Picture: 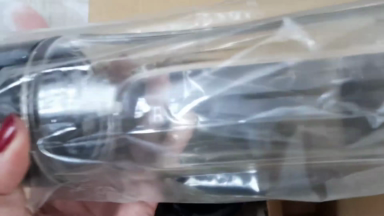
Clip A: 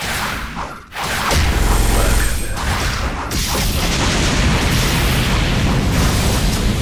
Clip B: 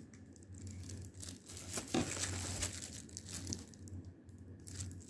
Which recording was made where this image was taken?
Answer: B